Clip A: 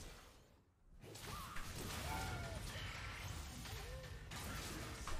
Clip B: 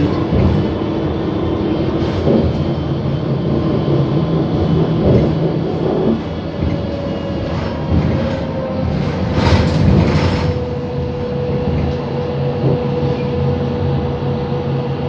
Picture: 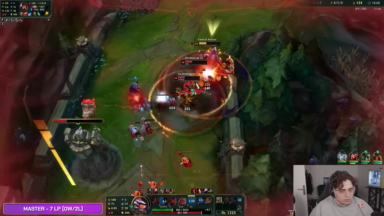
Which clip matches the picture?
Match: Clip A